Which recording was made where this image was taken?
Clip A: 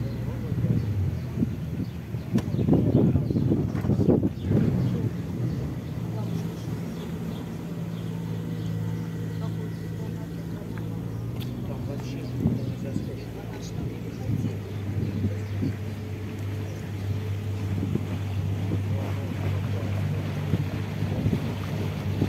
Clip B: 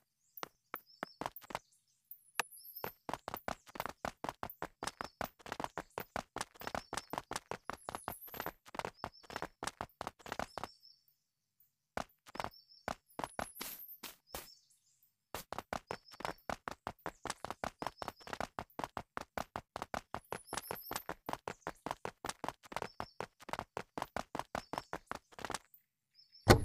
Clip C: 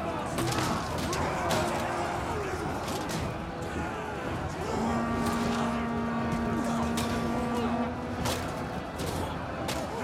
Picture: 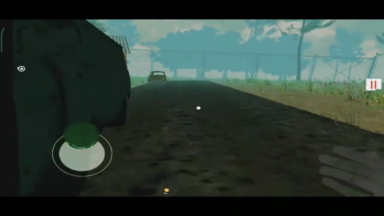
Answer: B